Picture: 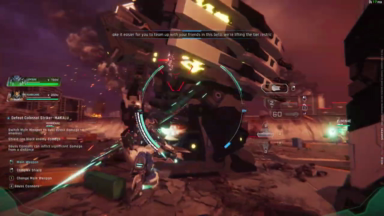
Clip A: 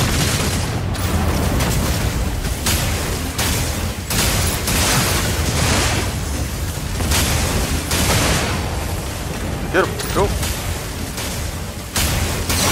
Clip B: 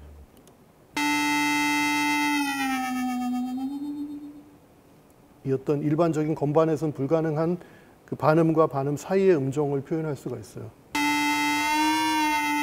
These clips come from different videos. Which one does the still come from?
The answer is A